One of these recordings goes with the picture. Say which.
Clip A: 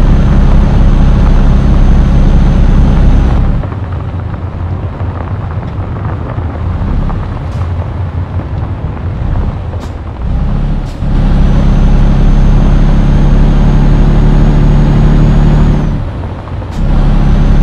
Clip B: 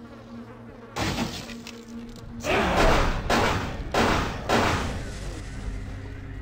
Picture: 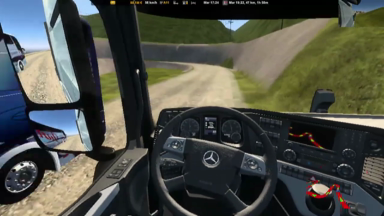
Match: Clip A